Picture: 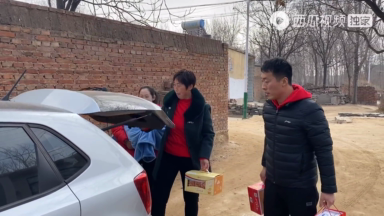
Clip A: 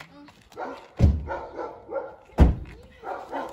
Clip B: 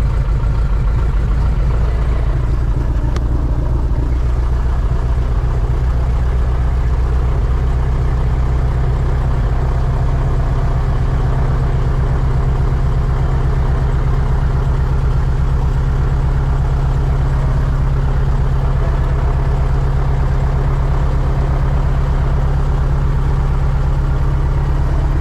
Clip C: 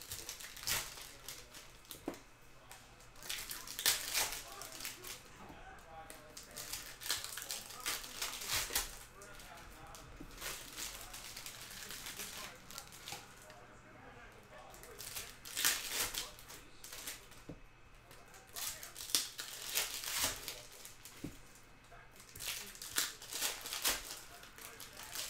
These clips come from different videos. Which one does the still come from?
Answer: A